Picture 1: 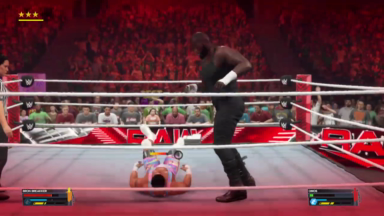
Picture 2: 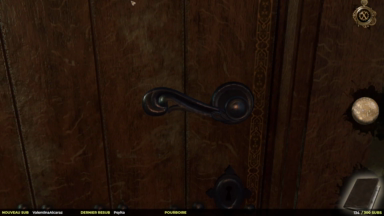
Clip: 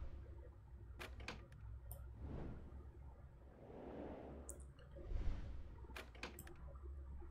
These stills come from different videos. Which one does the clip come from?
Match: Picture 2